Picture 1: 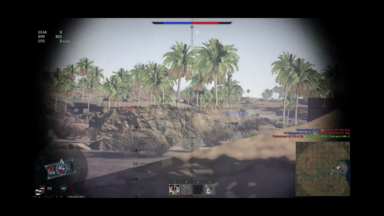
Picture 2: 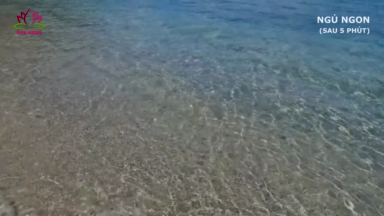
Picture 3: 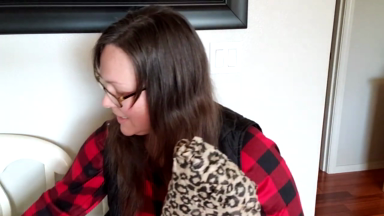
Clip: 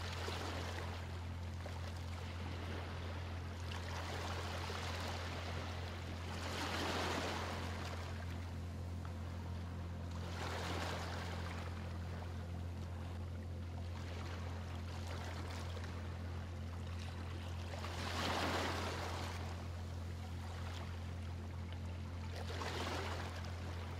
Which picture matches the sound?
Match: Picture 2